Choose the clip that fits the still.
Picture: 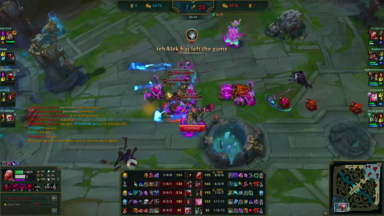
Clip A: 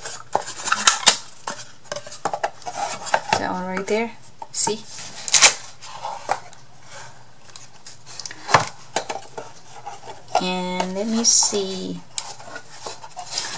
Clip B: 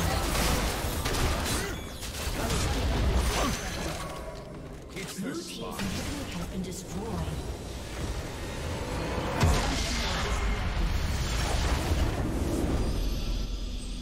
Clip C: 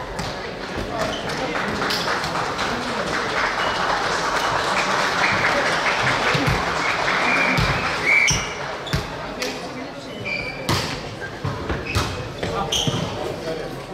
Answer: B